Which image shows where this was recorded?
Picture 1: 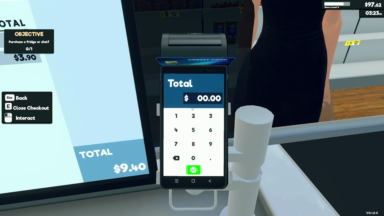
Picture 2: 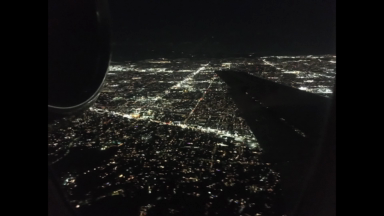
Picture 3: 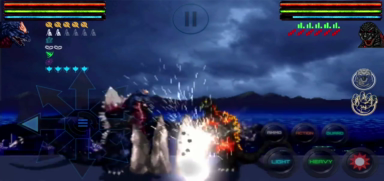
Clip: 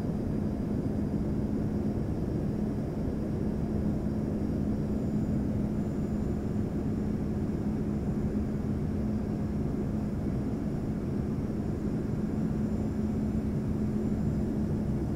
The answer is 2